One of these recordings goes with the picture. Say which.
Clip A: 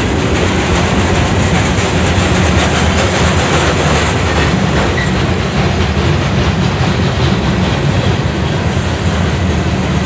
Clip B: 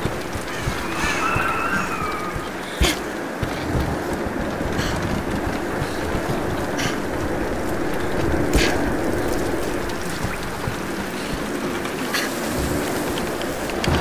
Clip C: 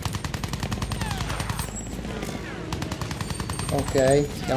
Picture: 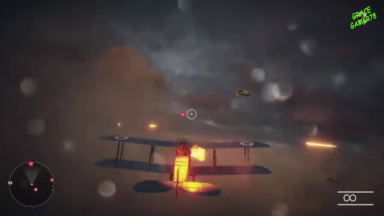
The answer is C